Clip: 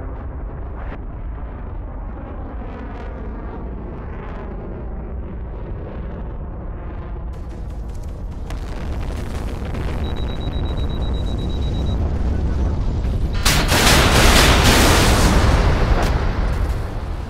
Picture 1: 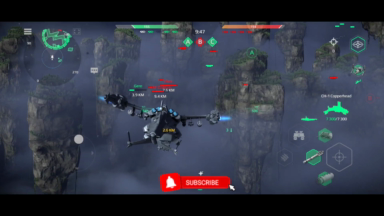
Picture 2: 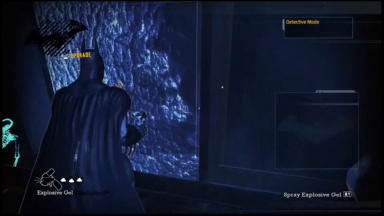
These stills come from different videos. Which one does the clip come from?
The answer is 1